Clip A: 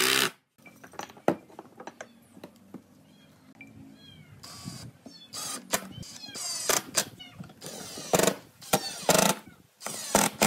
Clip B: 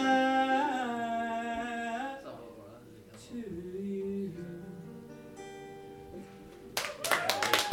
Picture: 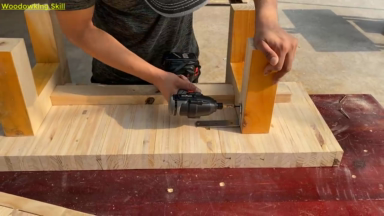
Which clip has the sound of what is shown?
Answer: A